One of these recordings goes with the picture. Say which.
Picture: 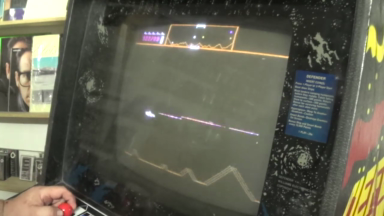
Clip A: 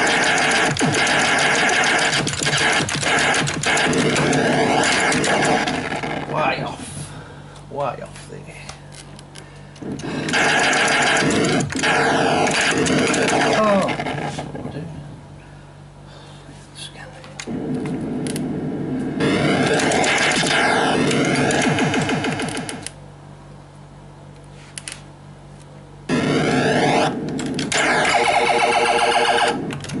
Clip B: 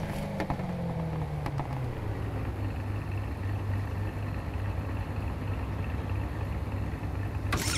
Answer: A